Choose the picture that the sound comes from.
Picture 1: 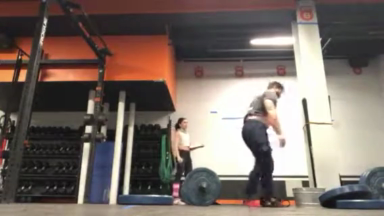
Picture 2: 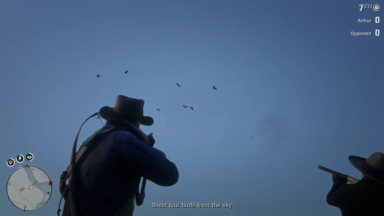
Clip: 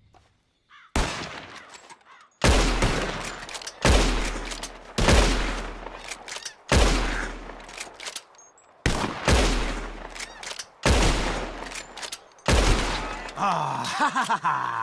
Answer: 2